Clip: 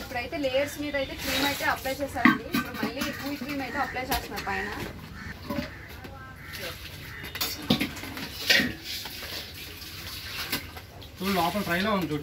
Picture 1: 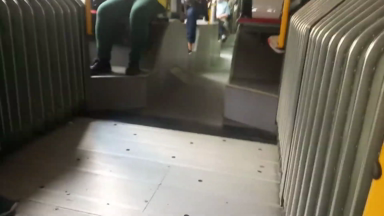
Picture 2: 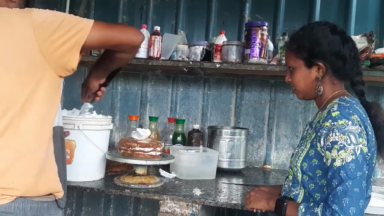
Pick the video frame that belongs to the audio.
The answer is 2